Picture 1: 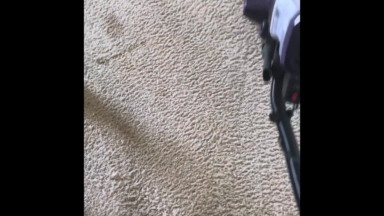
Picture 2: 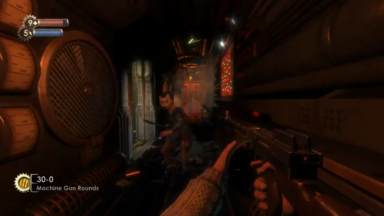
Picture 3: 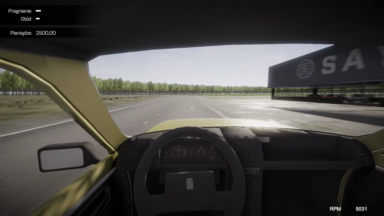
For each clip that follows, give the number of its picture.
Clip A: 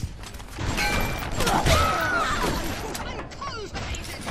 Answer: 2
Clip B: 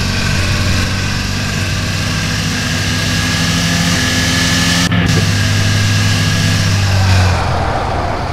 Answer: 3